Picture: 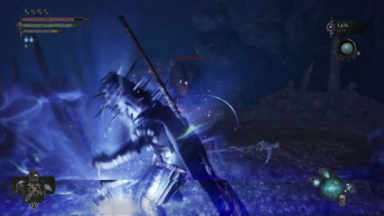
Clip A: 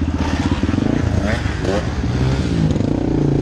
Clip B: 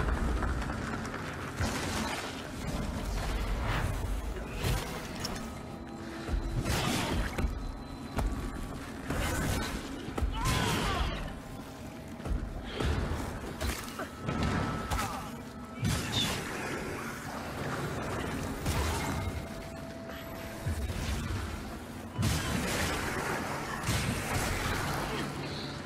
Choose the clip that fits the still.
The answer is B